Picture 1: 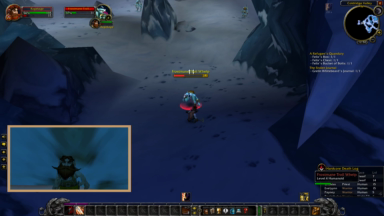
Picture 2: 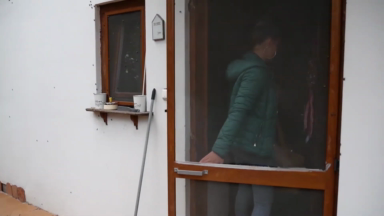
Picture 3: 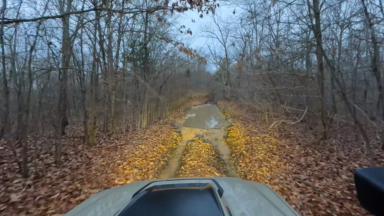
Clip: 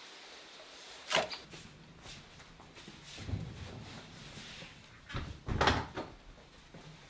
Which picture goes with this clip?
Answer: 2